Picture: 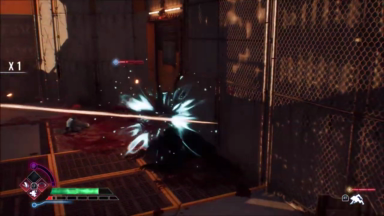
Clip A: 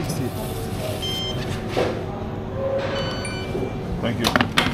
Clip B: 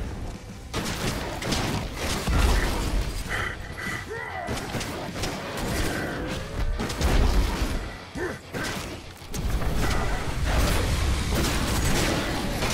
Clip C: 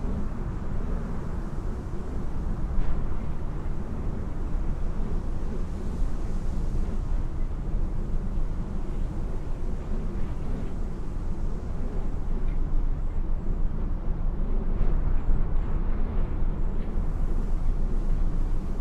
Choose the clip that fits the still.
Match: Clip B